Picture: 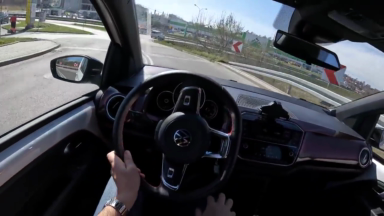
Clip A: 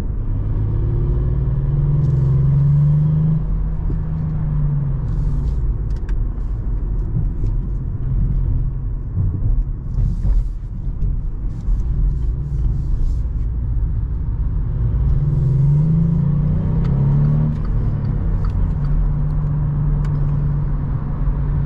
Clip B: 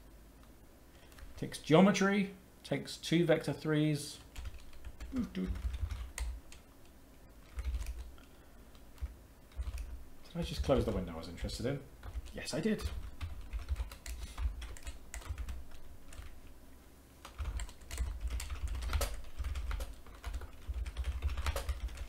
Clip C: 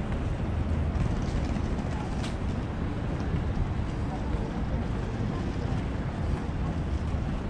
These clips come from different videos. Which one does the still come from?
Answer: A